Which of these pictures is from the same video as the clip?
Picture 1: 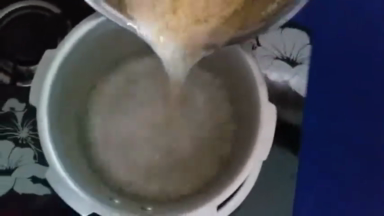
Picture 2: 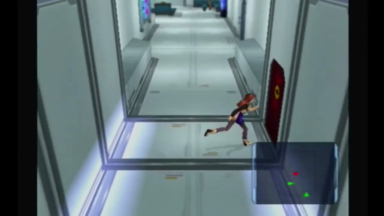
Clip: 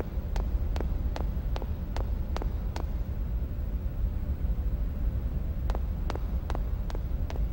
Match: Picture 2